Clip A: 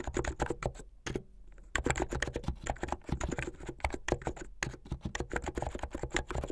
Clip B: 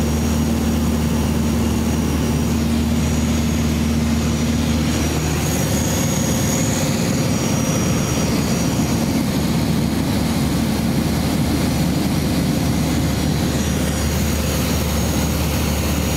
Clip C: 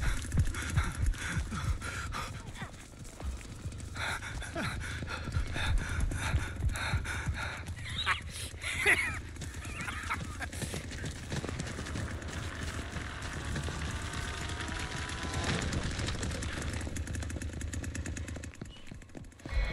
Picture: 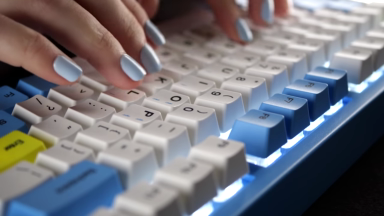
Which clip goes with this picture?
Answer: A